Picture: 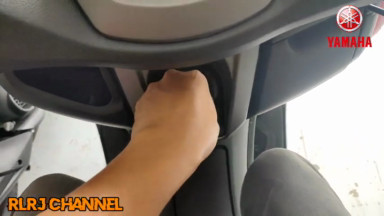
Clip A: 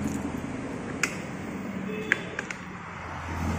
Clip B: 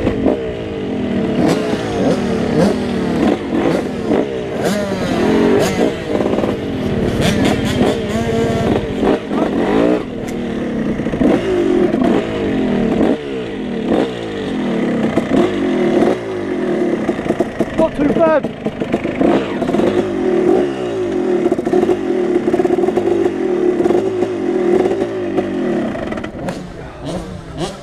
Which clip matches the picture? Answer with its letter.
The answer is A